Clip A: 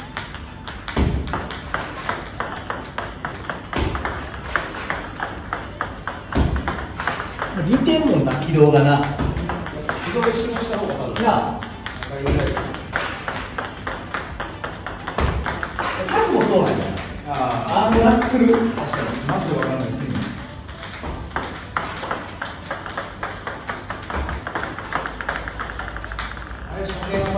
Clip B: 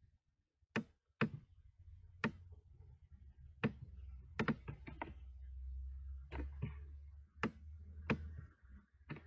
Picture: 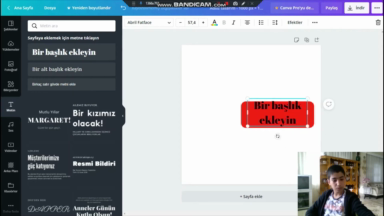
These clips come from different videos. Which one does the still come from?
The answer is B